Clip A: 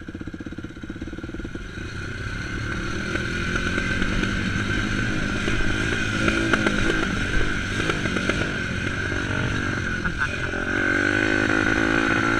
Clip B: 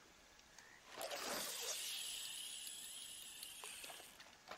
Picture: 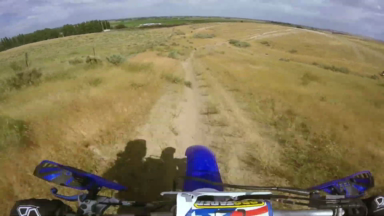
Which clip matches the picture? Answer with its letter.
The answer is A